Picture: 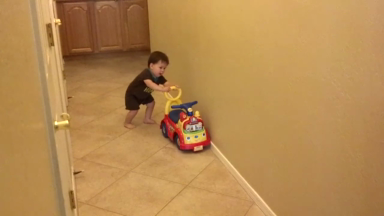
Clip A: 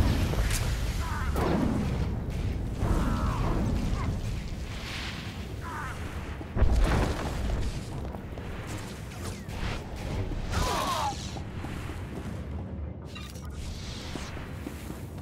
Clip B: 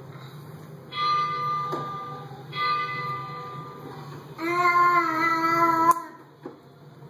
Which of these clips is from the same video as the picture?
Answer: B